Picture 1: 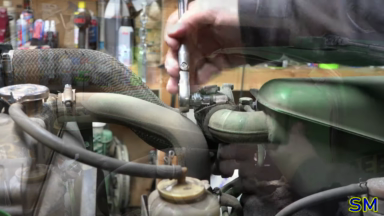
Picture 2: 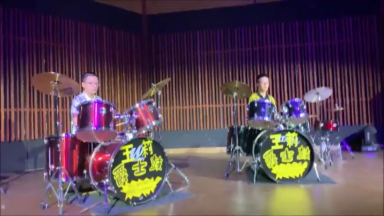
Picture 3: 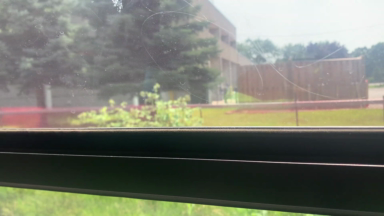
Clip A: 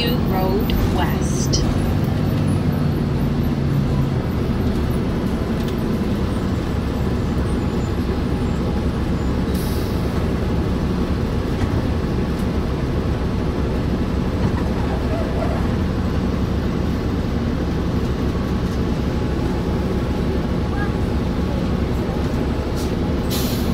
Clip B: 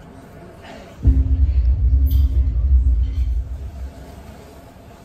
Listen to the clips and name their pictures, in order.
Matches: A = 3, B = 2